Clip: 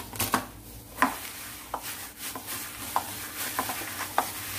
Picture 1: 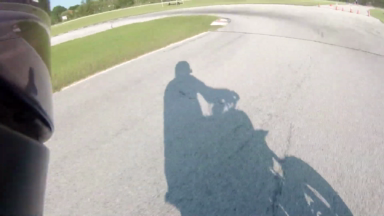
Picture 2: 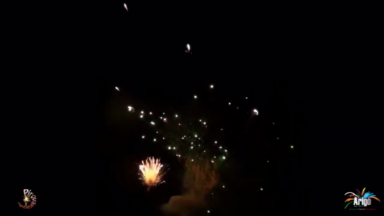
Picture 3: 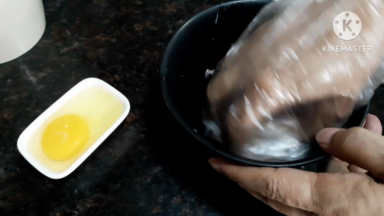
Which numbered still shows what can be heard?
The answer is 3